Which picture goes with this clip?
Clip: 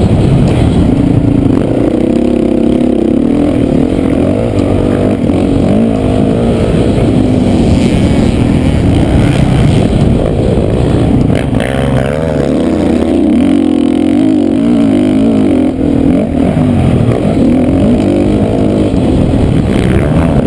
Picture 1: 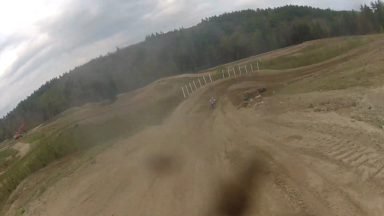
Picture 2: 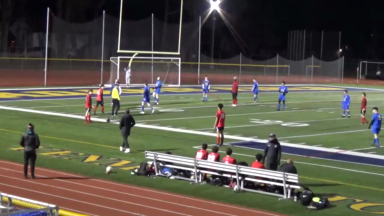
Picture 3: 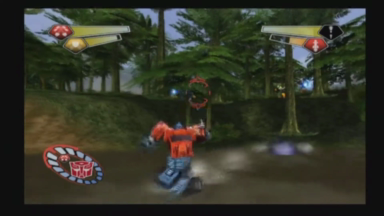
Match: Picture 1